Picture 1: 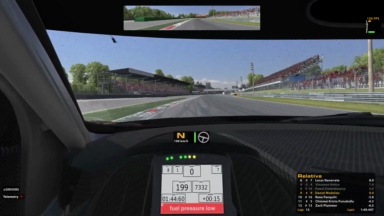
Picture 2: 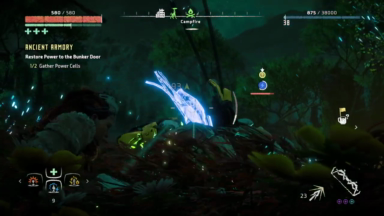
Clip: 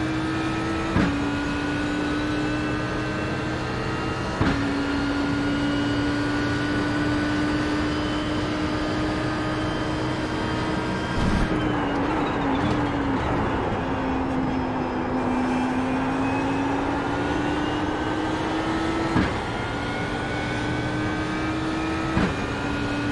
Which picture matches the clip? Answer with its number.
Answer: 1